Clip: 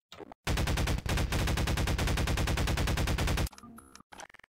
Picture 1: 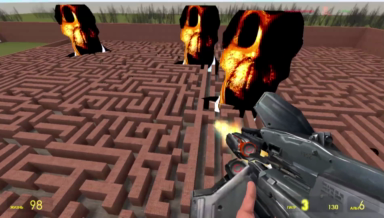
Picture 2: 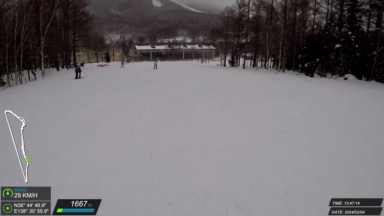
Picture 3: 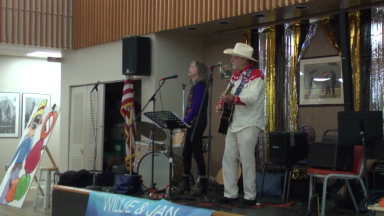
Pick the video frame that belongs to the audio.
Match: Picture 1